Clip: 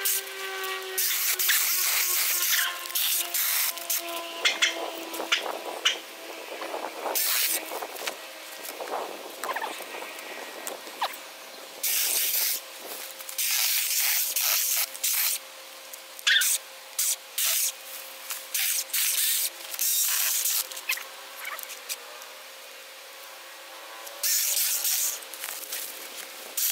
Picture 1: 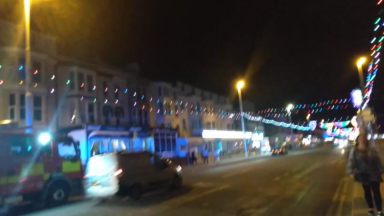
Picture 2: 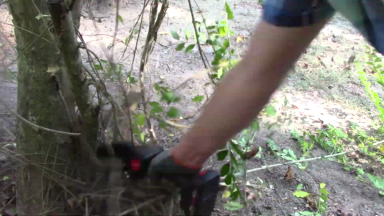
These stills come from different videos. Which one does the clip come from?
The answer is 2